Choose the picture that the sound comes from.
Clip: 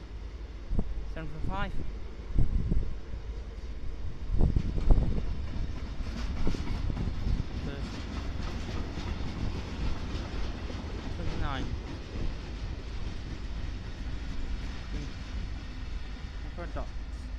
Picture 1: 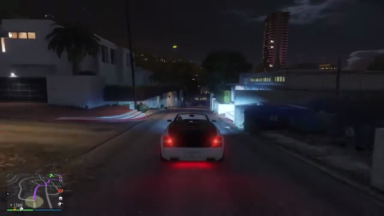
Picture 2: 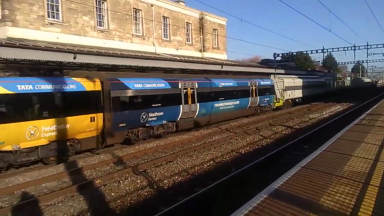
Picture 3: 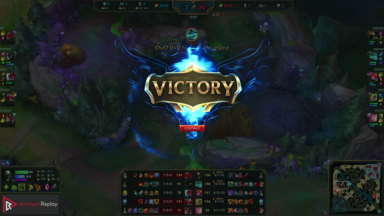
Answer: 2